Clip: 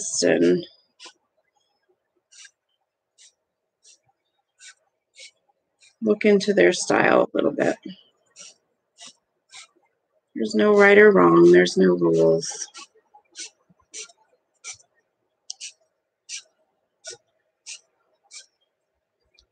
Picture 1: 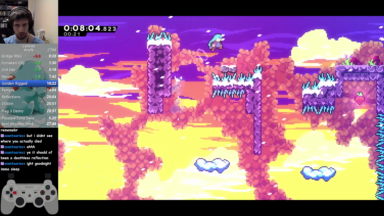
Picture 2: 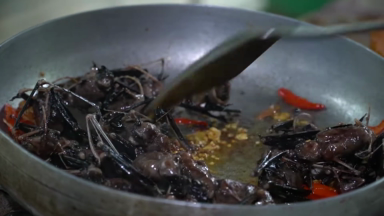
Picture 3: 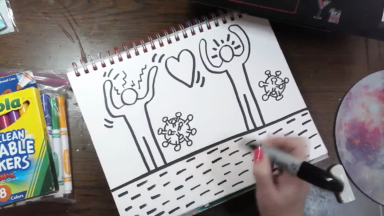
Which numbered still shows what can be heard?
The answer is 3